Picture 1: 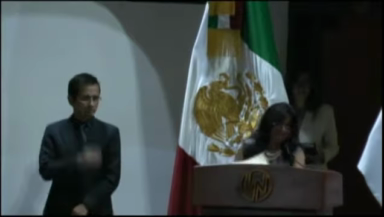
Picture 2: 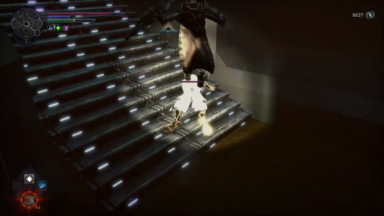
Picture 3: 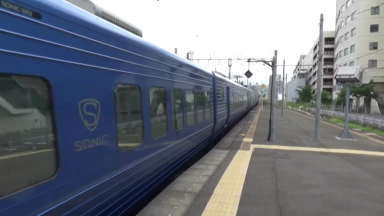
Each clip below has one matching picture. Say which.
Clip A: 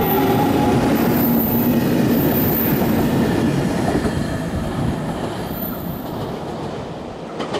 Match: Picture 3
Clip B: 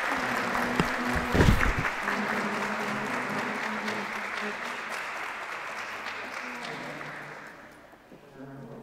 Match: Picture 1